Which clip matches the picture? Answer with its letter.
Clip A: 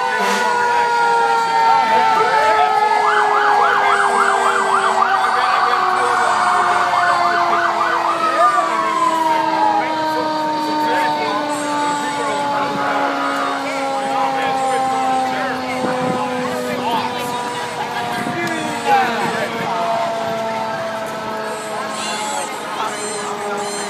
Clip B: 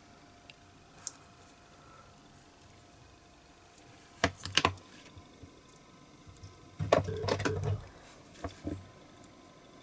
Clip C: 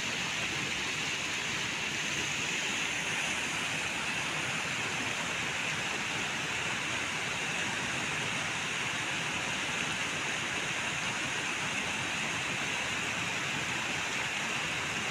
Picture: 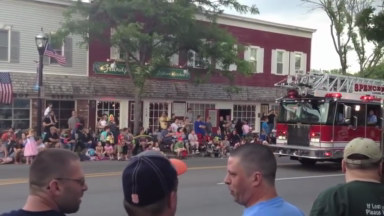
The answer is A